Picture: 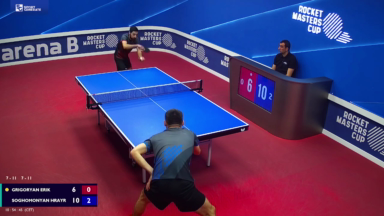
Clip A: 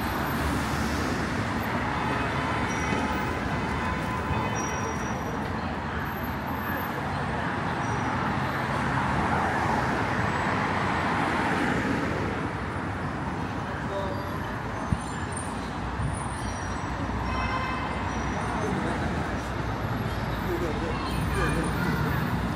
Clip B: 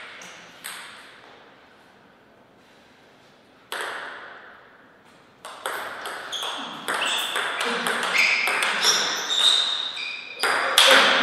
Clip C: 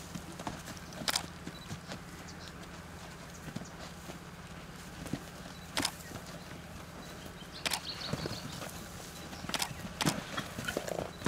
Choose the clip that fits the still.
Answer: B